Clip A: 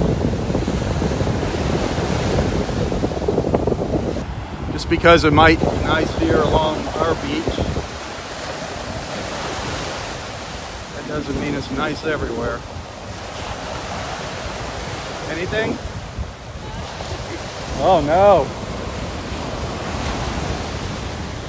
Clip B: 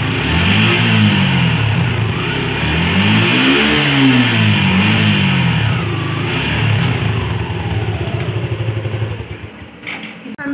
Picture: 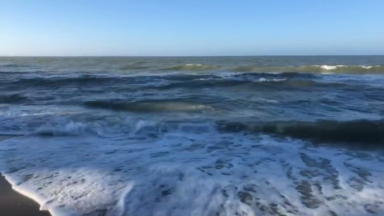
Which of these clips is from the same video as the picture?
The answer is A